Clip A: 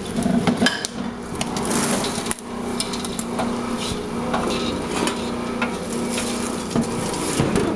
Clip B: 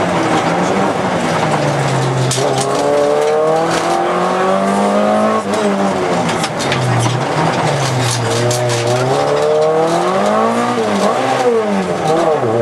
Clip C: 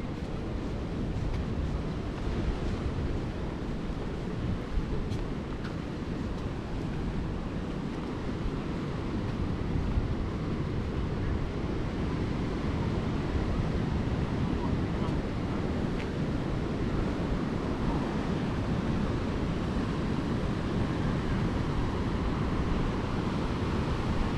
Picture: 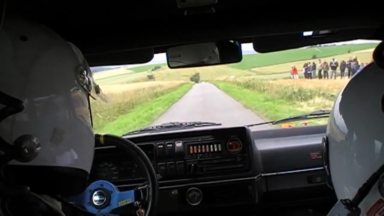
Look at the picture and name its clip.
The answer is B